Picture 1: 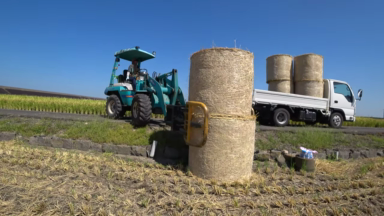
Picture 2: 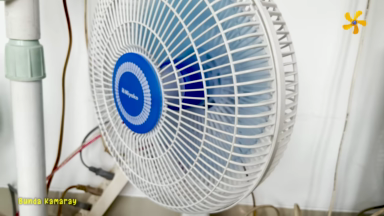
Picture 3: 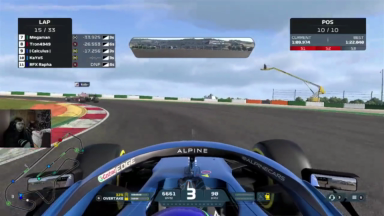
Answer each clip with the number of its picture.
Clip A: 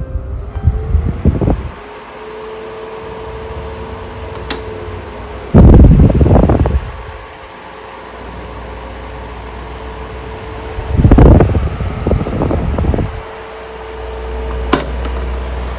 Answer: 2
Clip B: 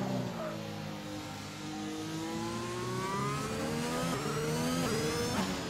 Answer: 3